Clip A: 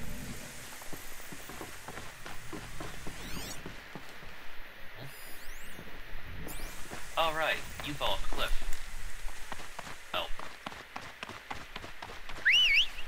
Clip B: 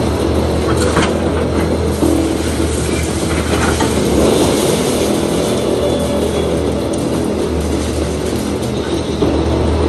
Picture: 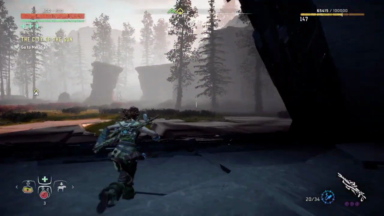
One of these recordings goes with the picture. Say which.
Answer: A